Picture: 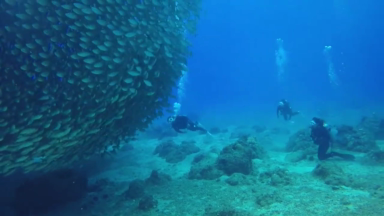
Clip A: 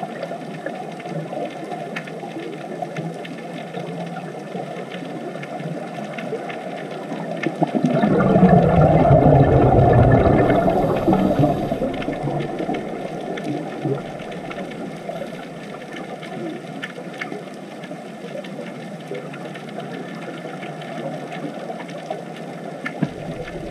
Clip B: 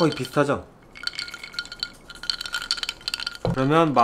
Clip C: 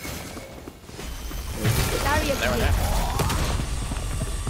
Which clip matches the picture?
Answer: A